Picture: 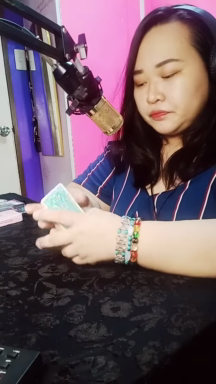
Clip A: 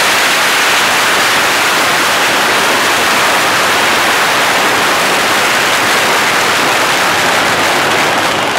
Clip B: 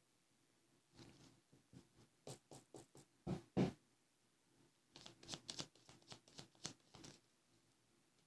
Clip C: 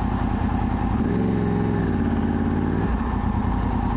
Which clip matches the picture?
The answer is B